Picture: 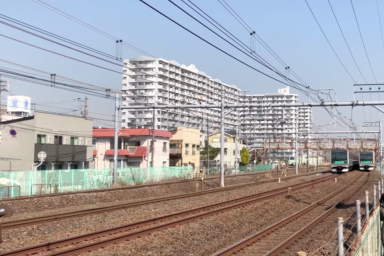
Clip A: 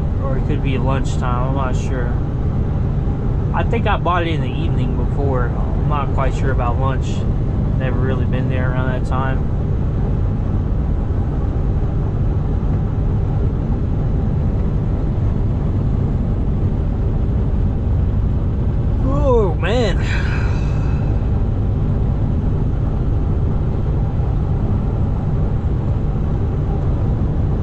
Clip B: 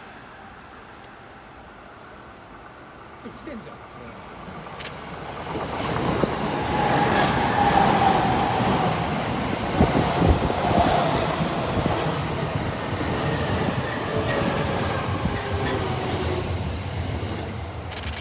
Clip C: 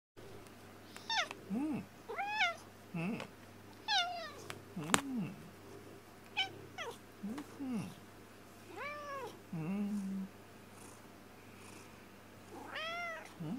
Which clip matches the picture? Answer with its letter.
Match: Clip B